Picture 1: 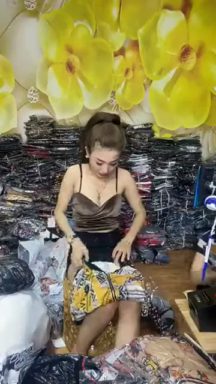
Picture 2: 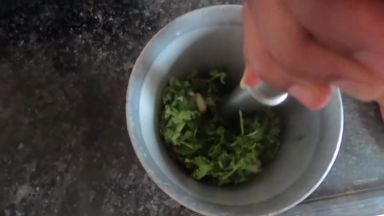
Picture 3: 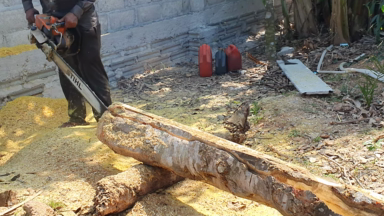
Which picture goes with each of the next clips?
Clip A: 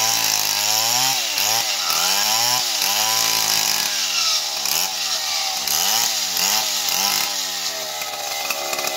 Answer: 3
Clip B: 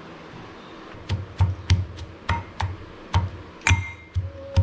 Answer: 2